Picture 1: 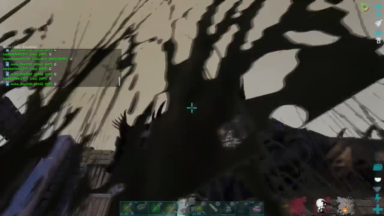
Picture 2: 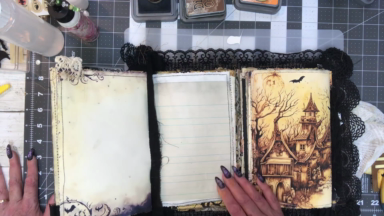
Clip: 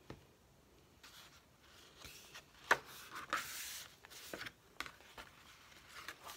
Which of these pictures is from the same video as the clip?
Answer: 2